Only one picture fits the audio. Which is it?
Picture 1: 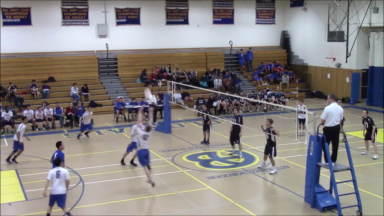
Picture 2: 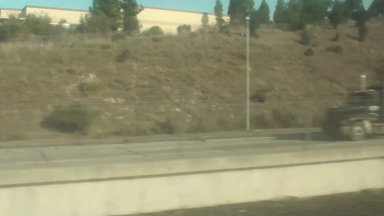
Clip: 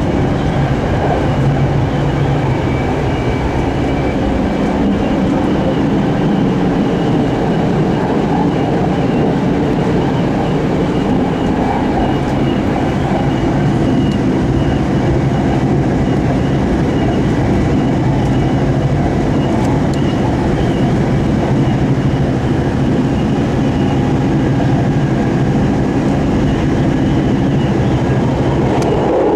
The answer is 2